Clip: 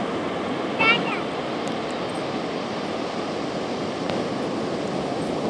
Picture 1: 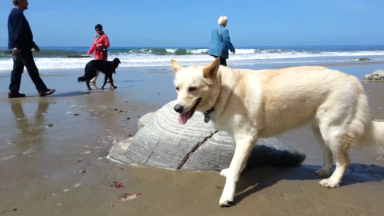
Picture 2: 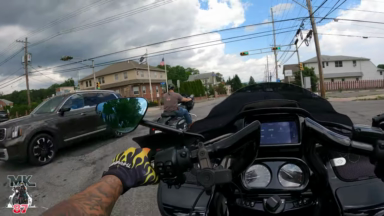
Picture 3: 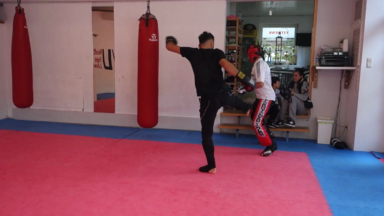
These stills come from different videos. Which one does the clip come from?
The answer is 1